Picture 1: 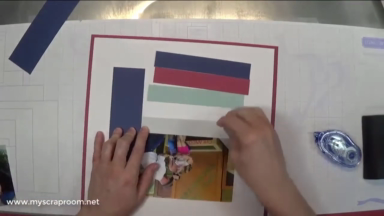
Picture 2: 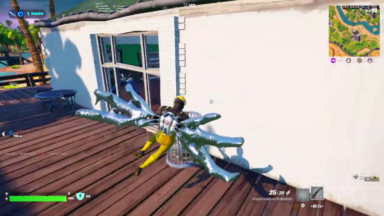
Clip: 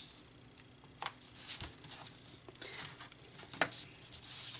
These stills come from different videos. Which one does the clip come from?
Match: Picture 1